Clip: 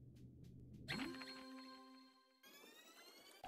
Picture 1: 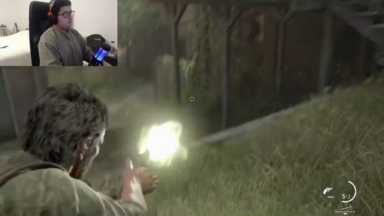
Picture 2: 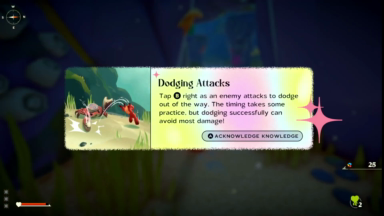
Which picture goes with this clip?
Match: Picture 2